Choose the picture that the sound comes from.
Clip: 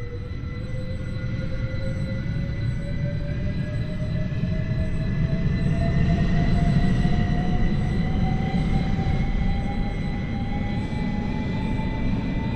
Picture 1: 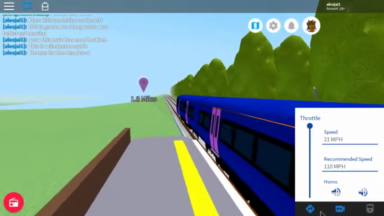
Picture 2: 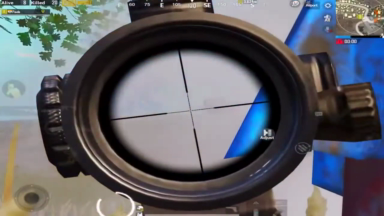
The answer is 1